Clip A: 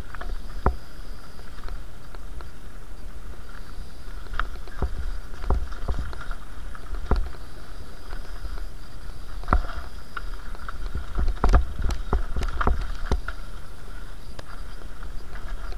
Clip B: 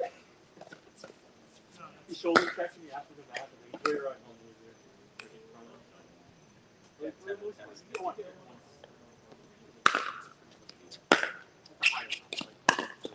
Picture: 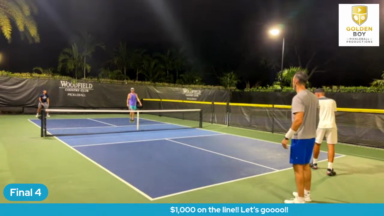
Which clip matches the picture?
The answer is B